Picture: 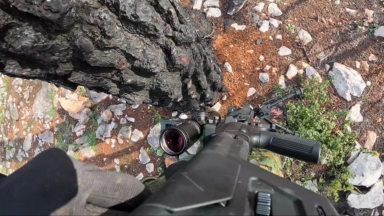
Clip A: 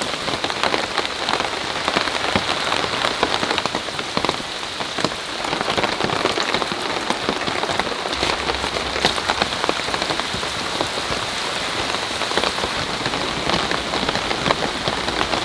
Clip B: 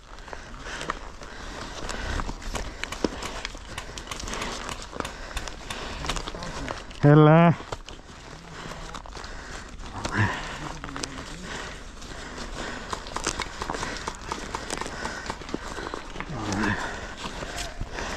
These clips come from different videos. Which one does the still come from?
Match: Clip B